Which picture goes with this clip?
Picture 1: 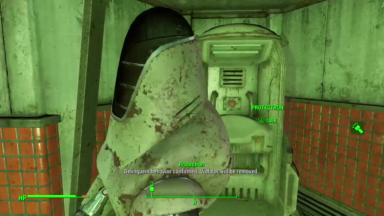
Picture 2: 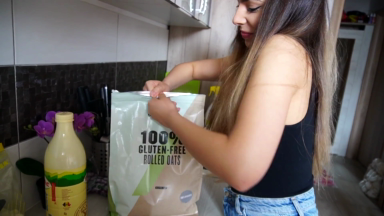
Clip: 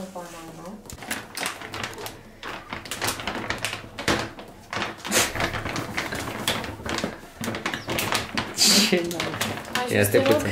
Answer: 2